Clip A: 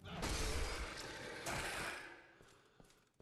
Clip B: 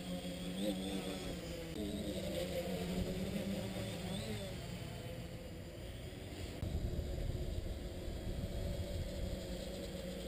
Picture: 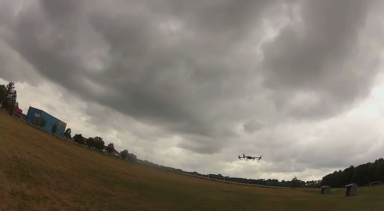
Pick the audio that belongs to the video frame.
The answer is B